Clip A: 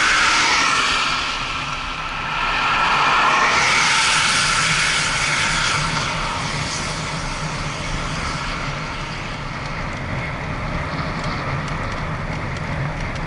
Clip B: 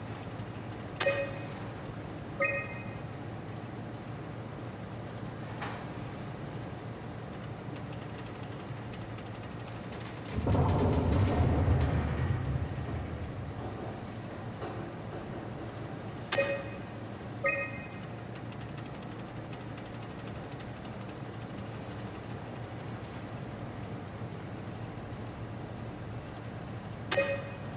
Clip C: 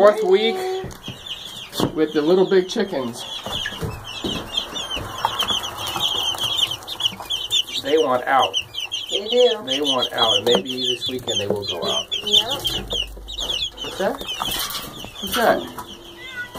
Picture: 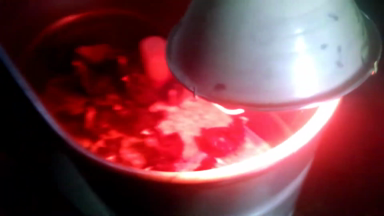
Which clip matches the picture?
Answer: C